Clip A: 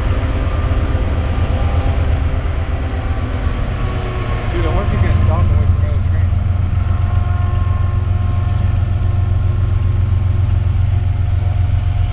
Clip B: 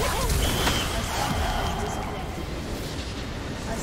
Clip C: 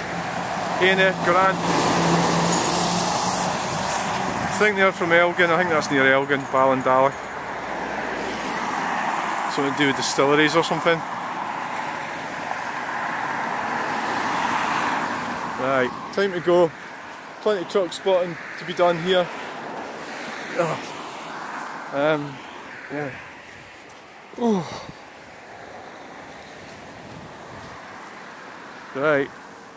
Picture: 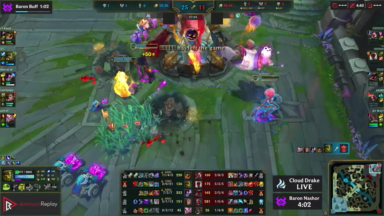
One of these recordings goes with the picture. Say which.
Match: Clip B